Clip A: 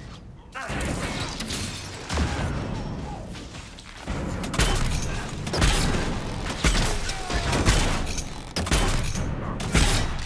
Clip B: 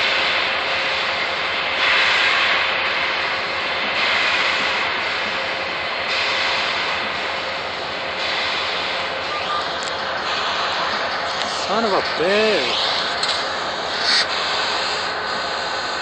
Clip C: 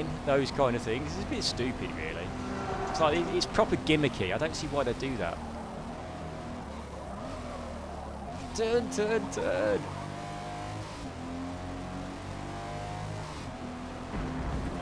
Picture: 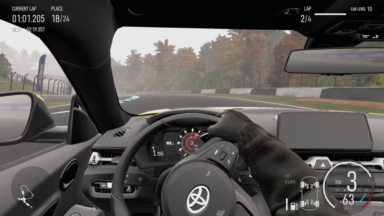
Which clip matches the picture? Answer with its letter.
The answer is C